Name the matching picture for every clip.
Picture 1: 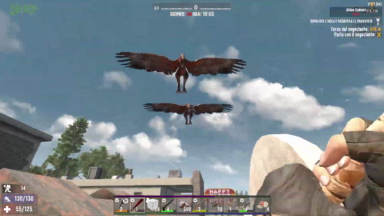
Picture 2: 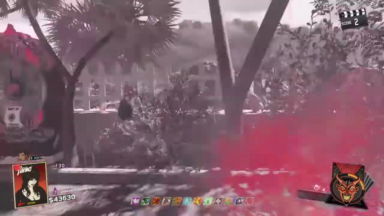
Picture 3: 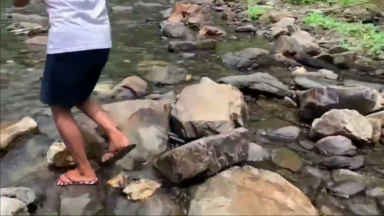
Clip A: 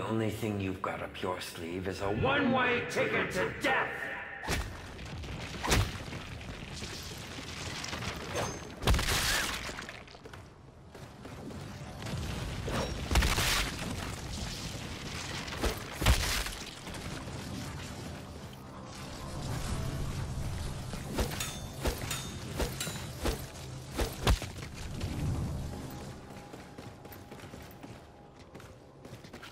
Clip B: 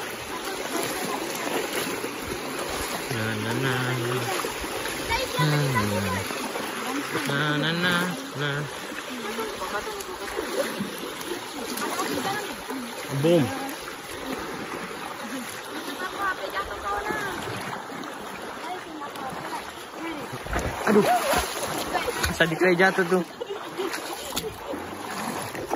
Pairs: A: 2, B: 3